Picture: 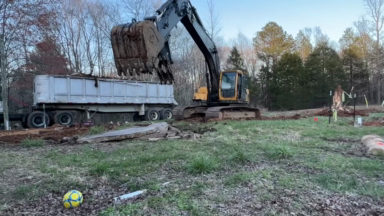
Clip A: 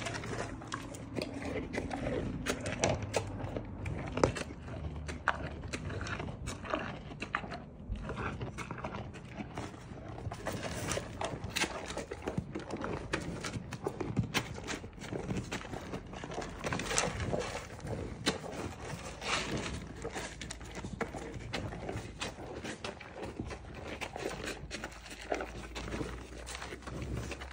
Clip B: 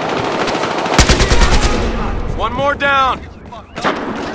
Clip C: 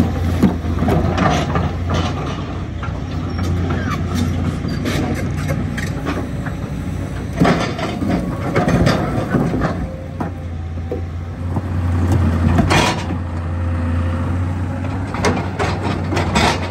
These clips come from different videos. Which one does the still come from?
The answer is C